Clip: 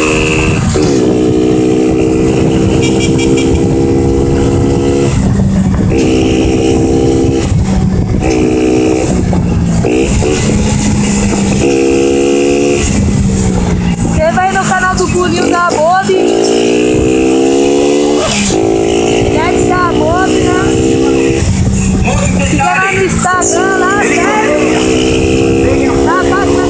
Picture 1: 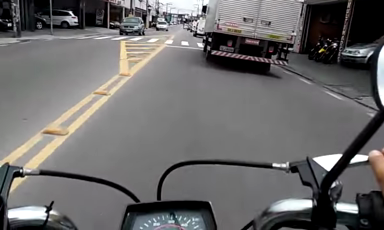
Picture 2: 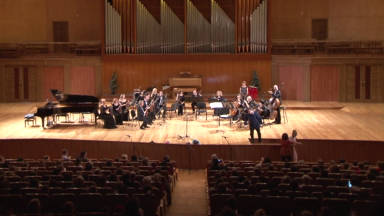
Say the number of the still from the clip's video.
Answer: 1